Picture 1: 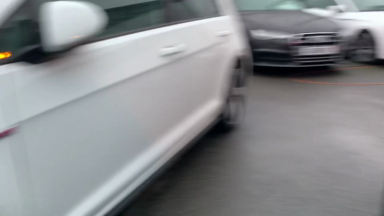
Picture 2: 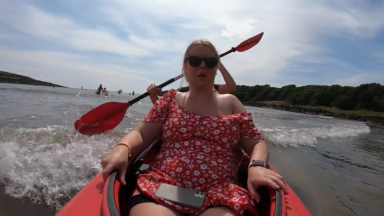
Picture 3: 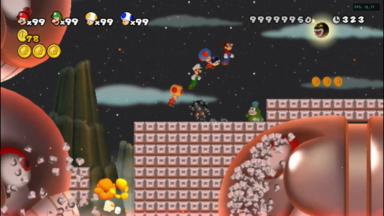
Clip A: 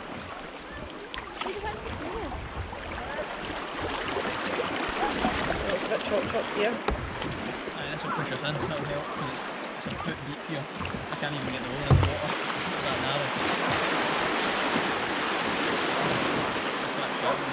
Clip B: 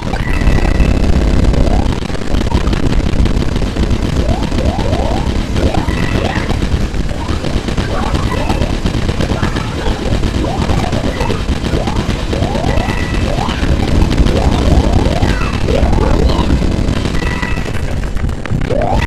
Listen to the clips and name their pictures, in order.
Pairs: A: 2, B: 3